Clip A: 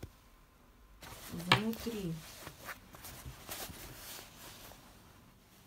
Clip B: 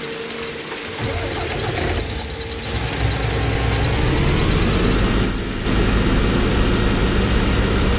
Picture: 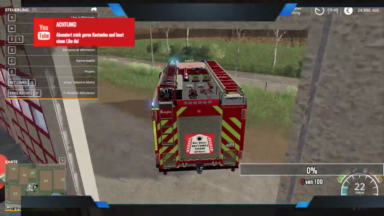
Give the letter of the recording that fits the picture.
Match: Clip B